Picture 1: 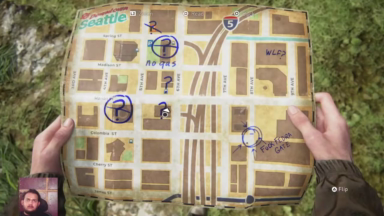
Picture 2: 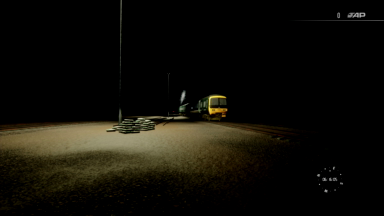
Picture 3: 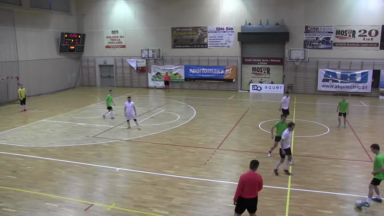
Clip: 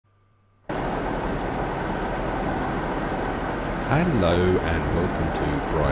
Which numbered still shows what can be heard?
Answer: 2